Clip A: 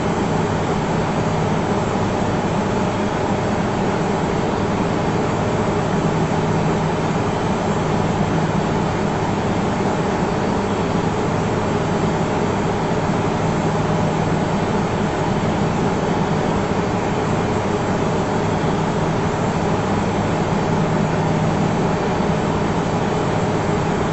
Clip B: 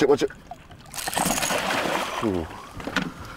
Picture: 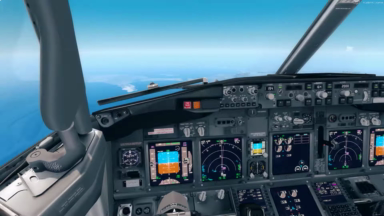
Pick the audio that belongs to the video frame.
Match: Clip A